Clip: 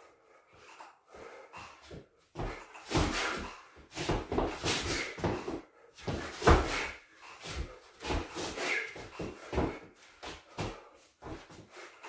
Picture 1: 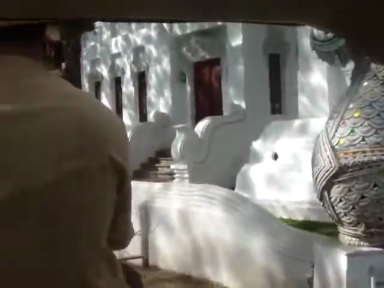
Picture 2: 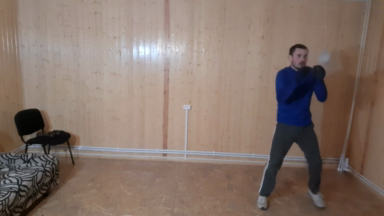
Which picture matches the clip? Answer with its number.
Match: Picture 2